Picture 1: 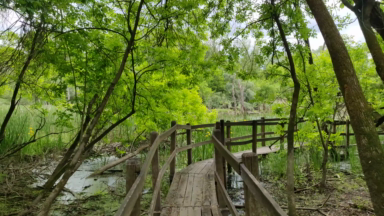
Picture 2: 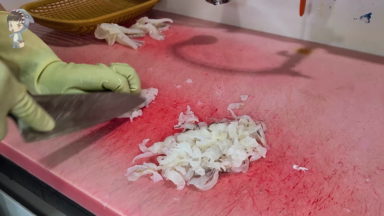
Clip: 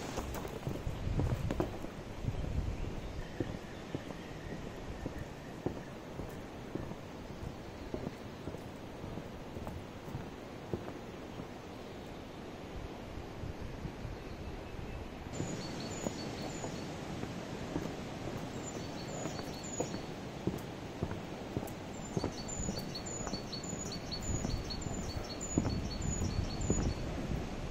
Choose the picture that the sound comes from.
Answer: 1